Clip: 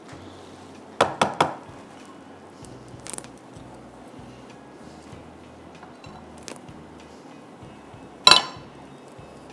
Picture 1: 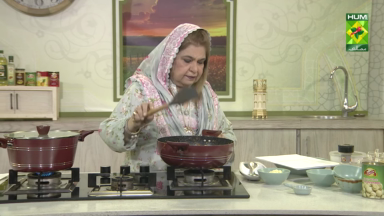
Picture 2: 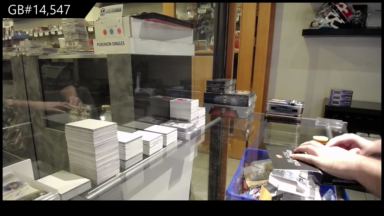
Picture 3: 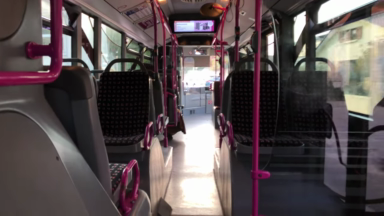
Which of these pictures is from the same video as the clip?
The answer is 1